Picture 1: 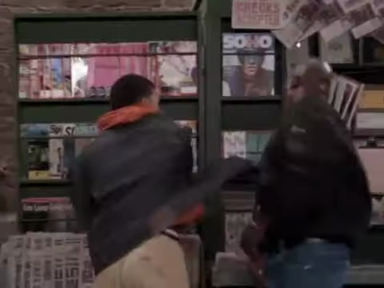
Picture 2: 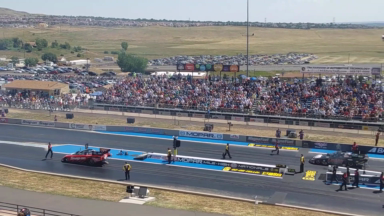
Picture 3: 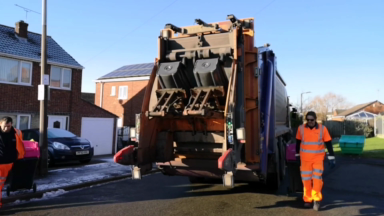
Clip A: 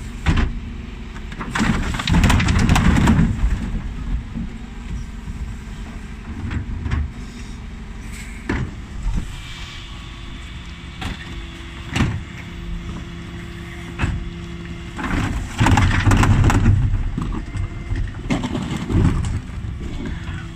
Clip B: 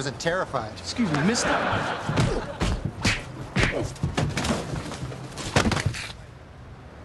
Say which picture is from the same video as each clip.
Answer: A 3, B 1